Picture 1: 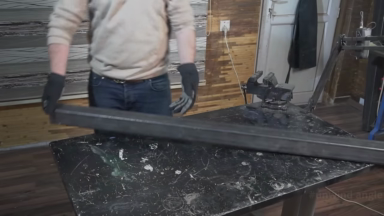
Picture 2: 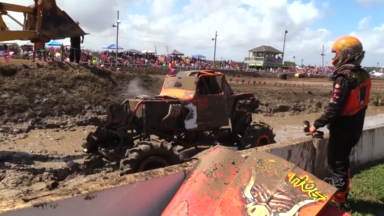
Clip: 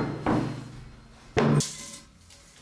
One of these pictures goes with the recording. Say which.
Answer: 1